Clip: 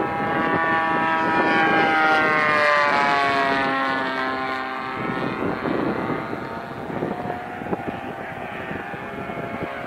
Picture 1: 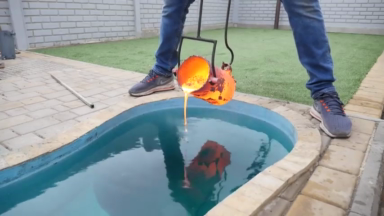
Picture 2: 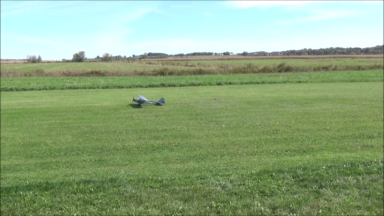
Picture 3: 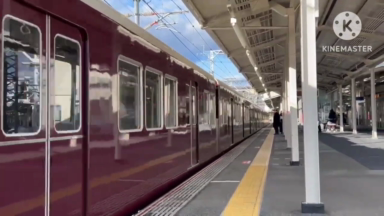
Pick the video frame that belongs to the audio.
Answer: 2